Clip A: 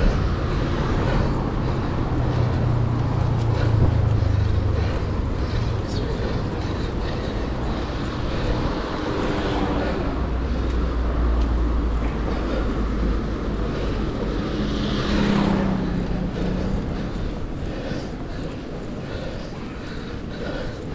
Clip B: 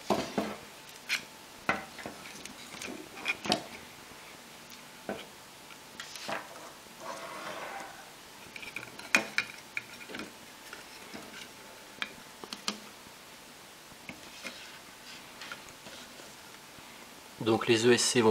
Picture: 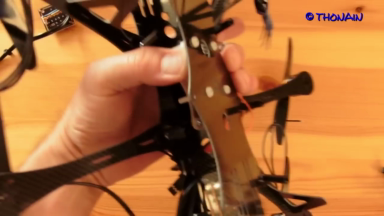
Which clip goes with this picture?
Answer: B